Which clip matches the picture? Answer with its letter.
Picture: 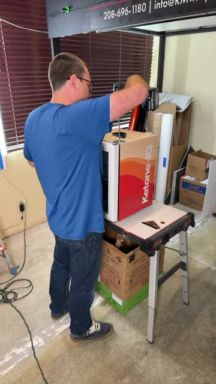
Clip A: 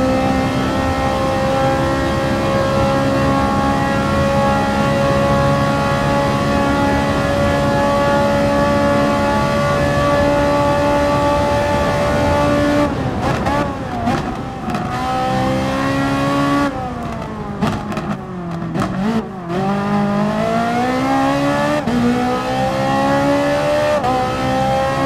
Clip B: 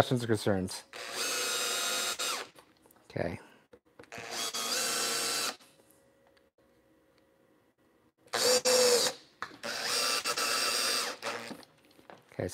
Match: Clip B